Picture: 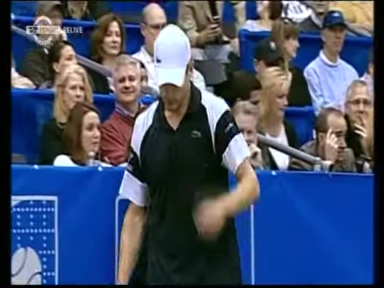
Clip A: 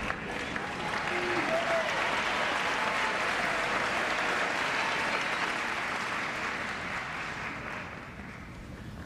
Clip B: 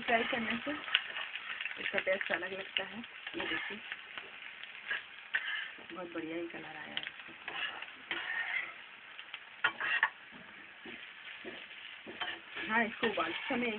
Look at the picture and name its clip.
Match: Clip A